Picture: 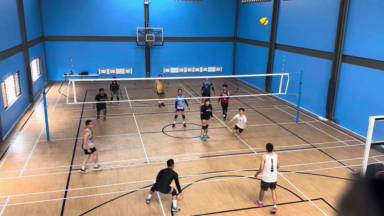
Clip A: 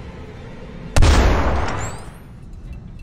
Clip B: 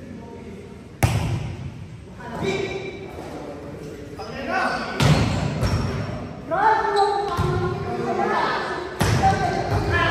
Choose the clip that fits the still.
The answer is B